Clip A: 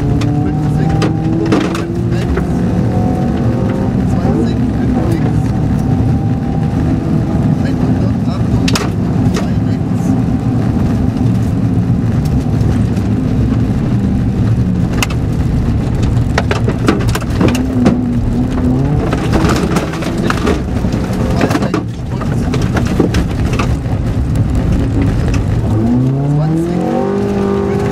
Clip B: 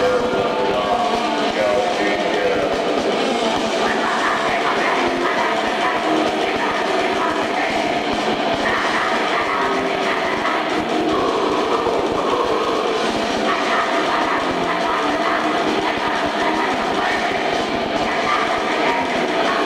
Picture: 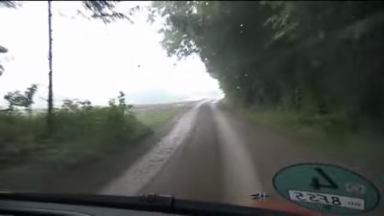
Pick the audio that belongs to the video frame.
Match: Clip A